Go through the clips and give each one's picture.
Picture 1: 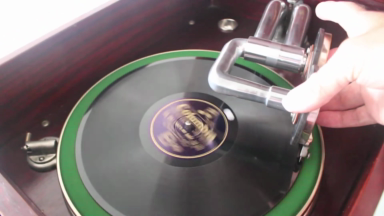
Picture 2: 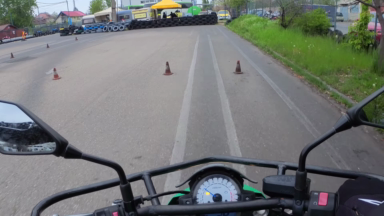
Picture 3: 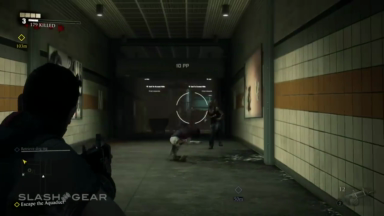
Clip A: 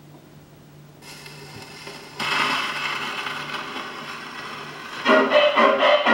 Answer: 1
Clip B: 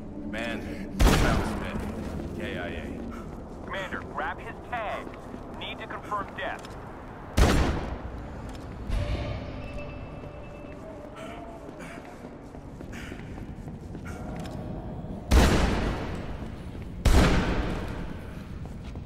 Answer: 3